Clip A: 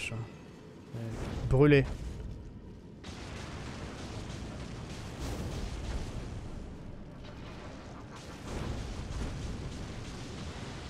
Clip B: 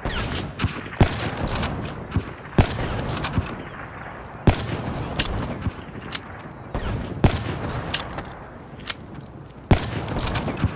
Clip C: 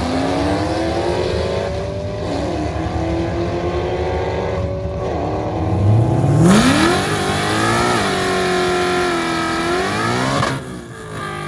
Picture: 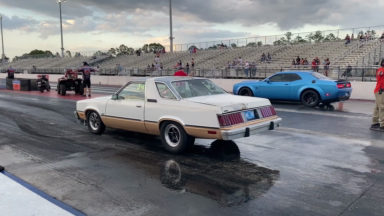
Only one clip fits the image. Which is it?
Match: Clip C